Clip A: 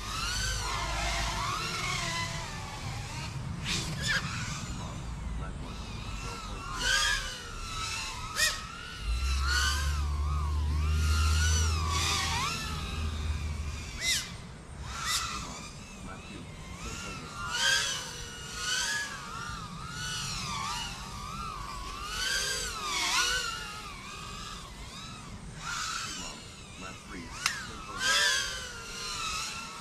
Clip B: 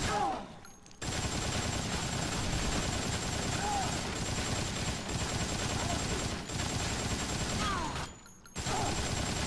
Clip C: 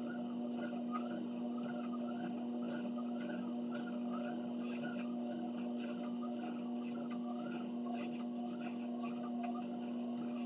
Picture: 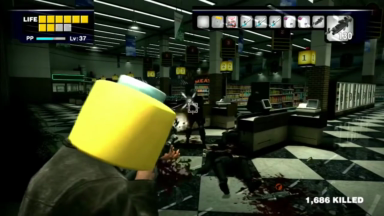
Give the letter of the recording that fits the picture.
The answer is B